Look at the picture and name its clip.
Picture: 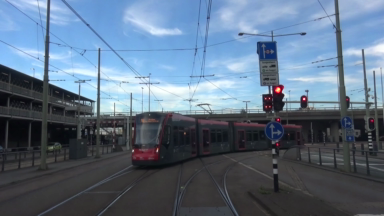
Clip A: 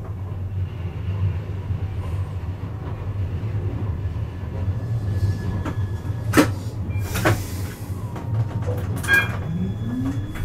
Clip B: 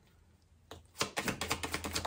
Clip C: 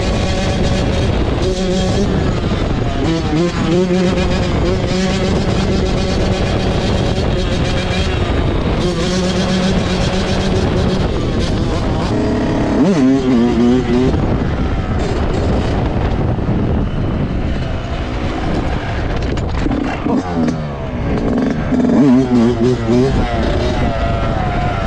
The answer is A